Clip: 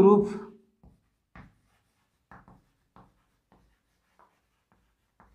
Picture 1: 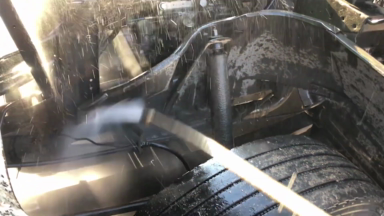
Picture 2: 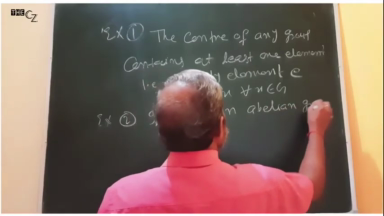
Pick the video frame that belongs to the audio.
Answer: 2